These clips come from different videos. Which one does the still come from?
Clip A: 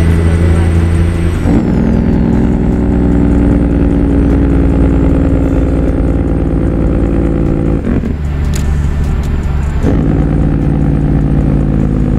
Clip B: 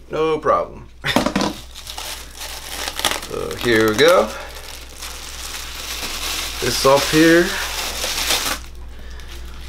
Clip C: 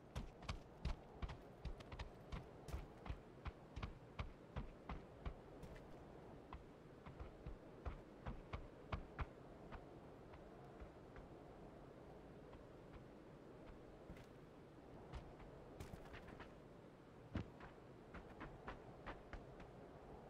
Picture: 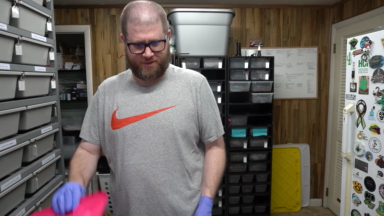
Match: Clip B